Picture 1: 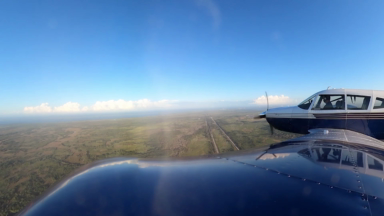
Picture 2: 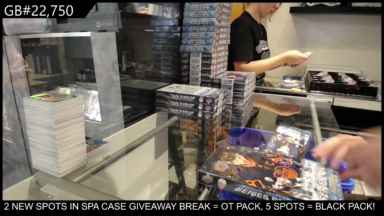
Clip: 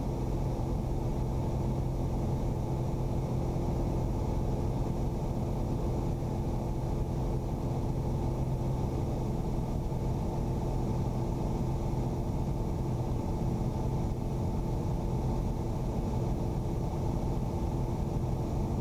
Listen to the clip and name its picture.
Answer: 1